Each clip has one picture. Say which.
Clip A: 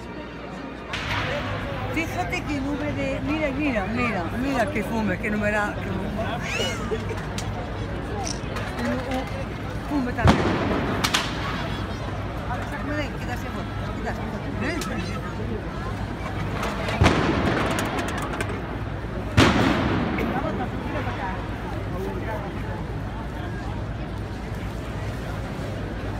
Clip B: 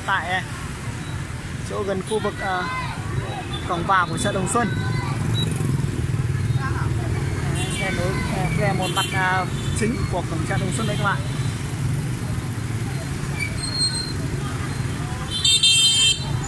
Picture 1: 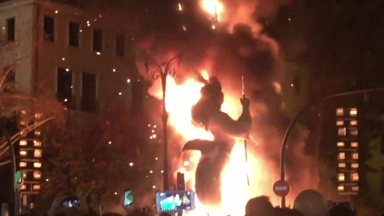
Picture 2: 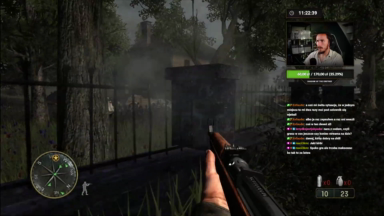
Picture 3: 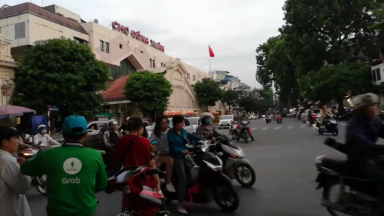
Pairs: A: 1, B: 3